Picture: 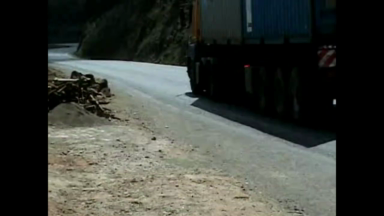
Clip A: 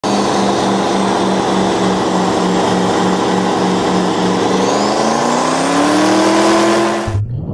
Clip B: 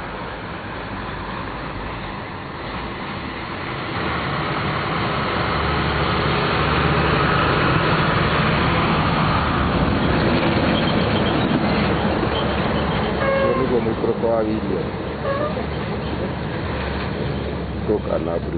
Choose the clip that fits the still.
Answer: B